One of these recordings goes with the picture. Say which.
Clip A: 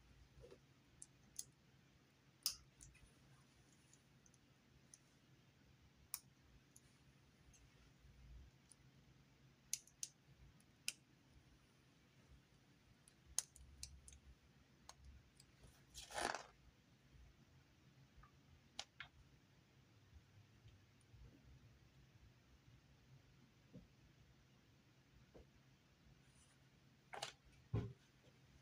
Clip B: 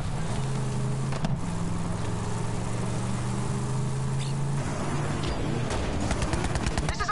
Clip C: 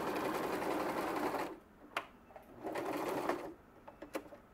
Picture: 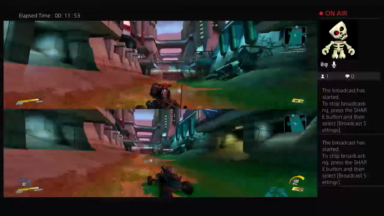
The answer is B